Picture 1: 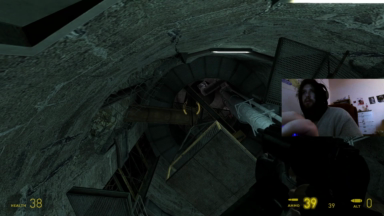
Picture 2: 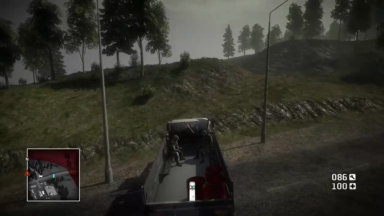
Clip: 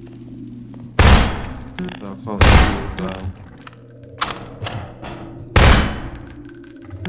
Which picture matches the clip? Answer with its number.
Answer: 1